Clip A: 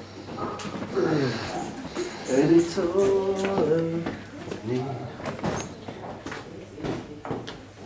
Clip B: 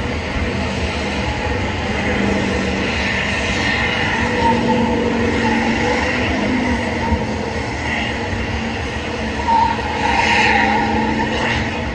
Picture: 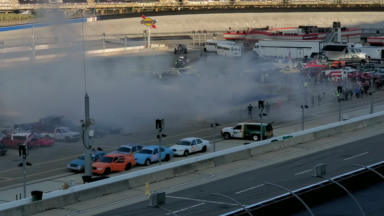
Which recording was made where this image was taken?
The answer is B